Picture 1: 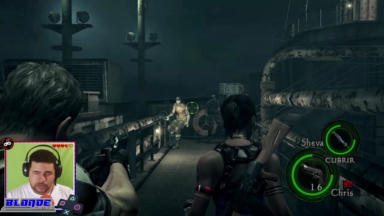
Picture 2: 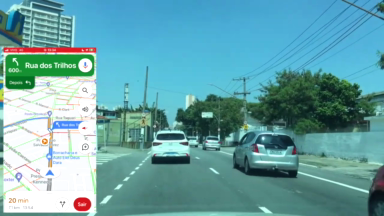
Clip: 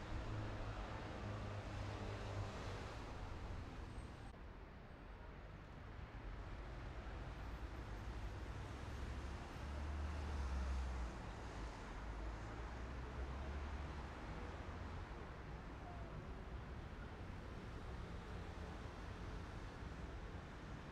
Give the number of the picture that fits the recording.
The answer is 2